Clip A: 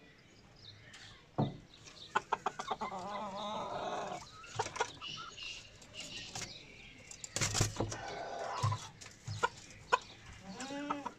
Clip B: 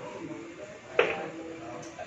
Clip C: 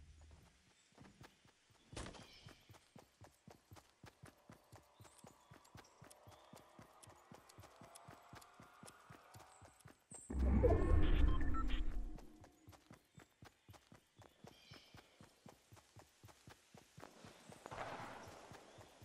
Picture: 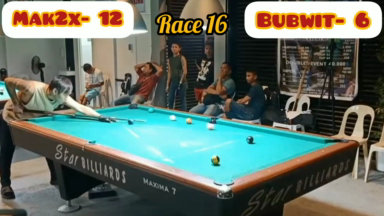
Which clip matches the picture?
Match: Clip B